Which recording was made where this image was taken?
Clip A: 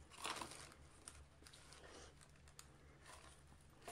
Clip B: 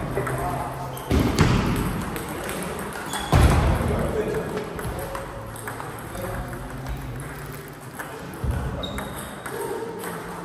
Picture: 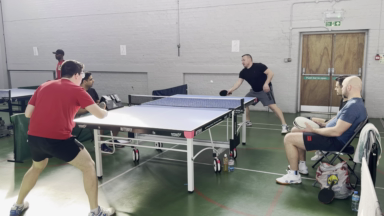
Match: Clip B